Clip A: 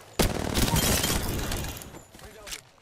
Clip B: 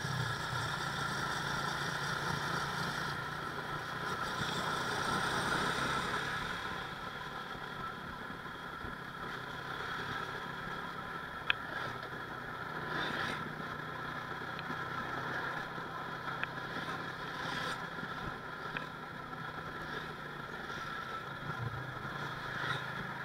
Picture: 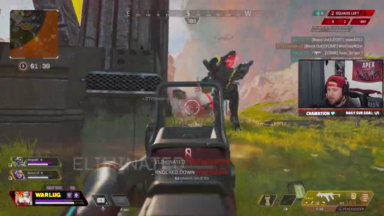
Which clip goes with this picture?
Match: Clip A